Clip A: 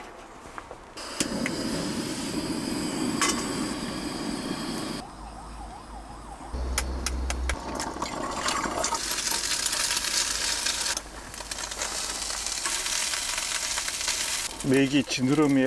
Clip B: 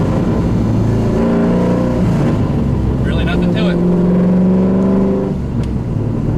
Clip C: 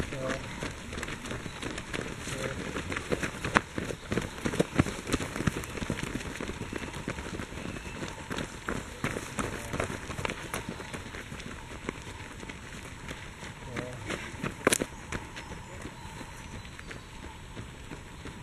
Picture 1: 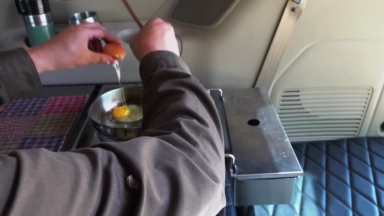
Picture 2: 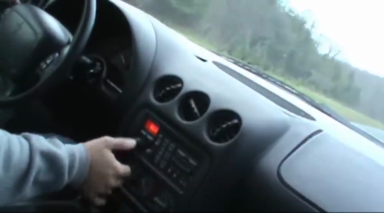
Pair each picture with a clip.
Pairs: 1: A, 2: B